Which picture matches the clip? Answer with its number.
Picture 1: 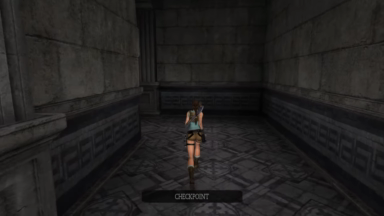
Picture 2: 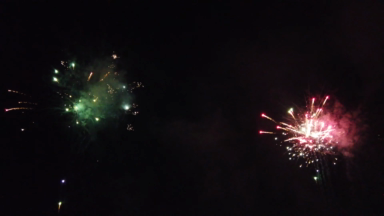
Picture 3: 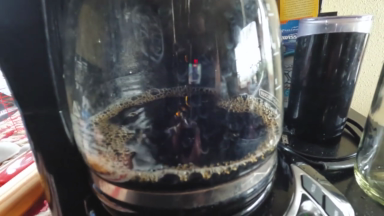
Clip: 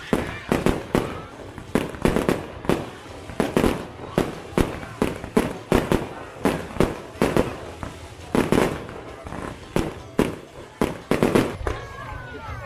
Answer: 2